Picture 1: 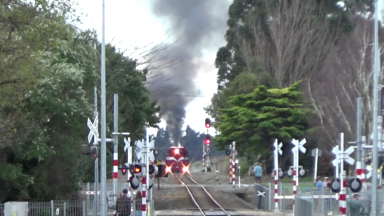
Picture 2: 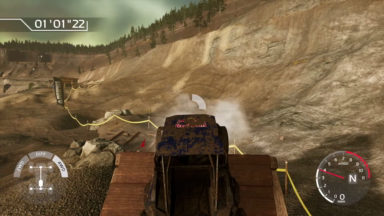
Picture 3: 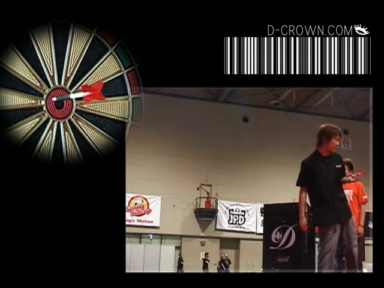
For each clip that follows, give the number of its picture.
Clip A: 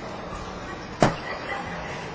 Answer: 3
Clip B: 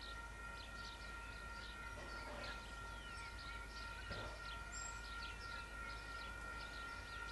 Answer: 1